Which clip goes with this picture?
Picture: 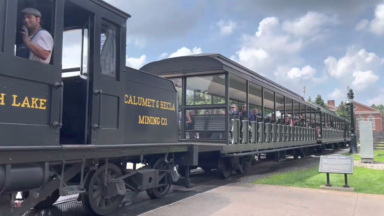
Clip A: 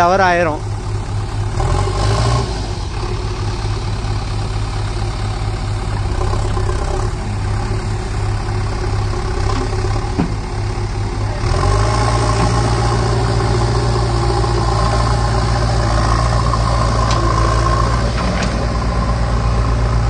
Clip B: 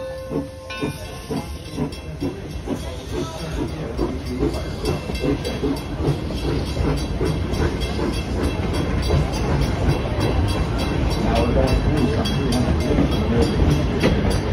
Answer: B